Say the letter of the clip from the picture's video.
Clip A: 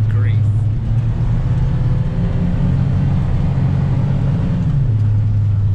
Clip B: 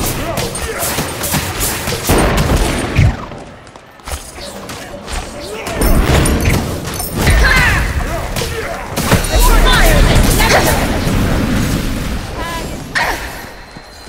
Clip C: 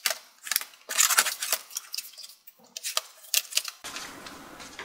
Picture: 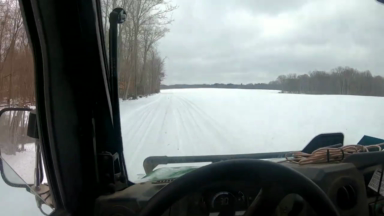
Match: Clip A